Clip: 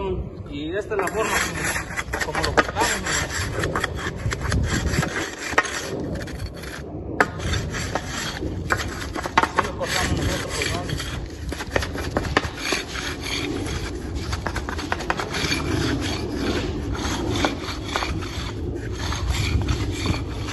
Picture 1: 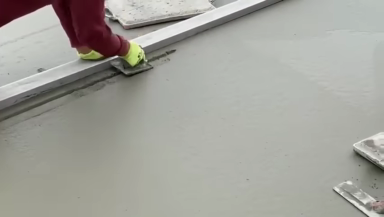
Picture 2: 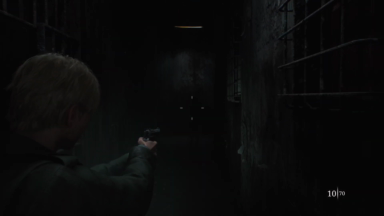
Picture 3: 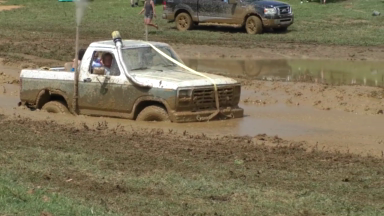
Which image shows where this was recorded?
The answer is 1